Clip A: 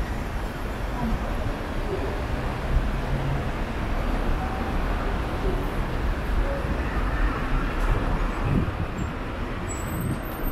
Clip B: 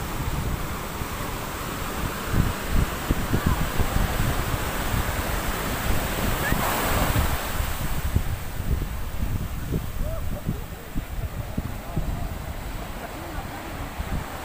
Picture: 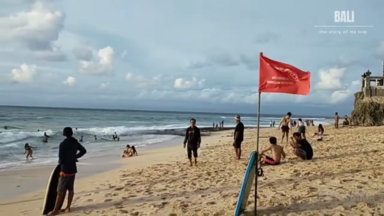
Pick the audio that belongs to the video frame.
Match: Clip B